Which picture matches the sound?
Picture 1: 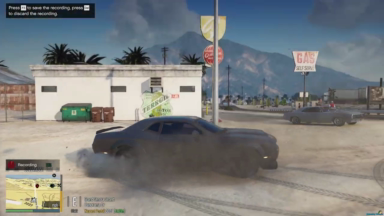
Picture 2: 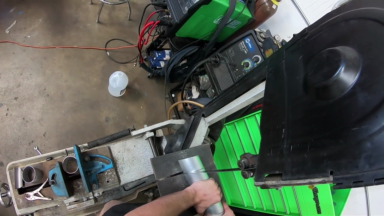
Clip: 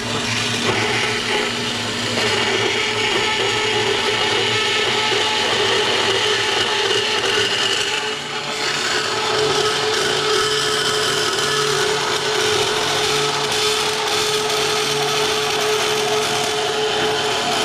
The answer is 2